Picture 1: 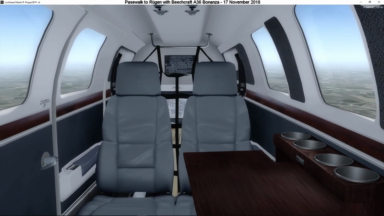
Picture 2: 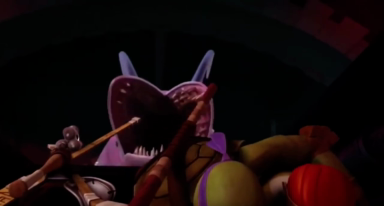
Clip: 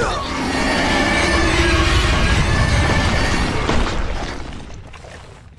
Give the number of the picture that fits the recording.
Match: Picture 2